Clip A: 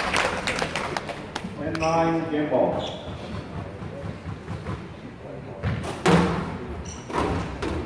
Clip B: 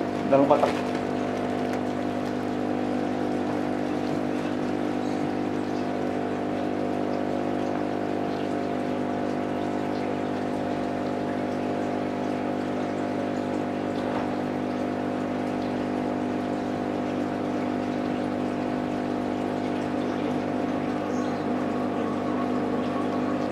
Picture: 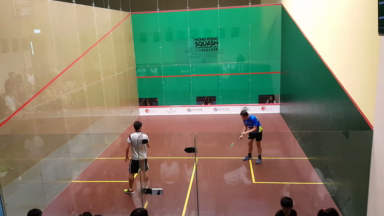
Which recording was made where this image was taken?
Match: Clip A